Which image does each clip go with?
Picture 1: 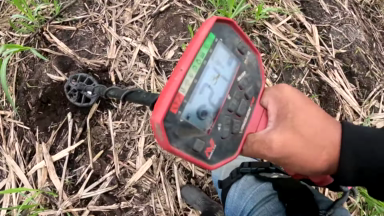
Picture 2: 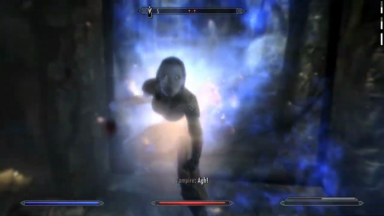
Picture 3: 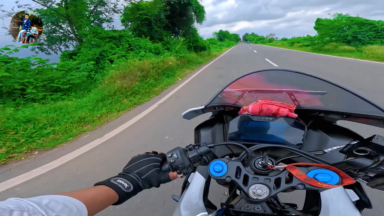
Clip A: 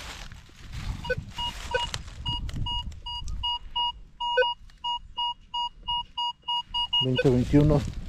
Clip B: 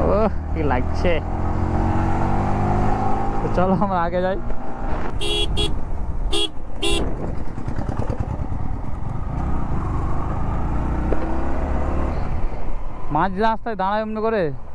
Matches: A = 1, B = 3